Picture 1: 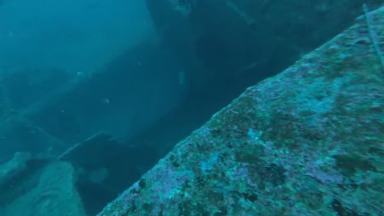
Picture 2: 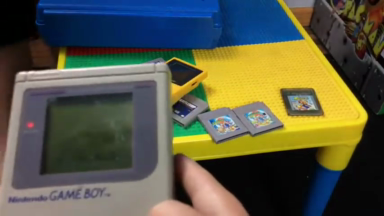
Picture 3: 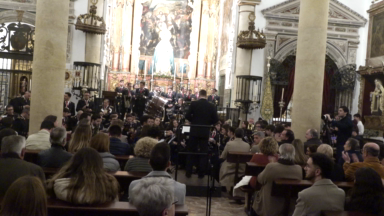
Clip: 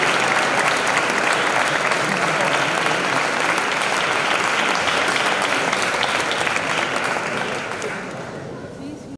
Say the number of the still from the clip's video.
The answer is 3